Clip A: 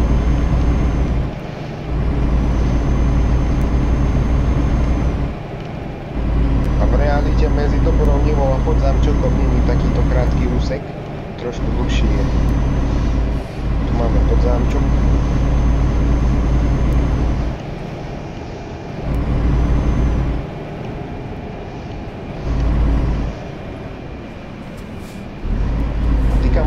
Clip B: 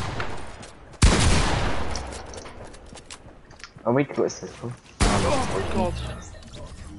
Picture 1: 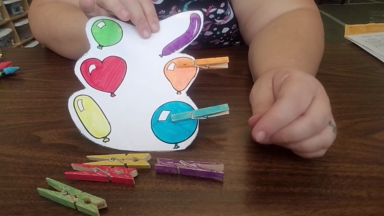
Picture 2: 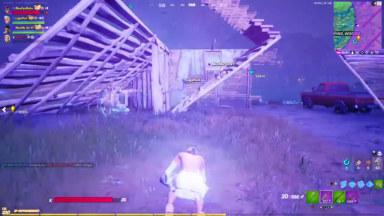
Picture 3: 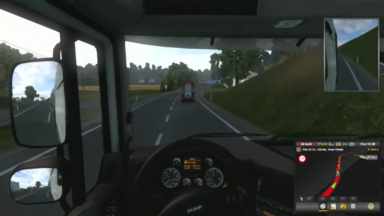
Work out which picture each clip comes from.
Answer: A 3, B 2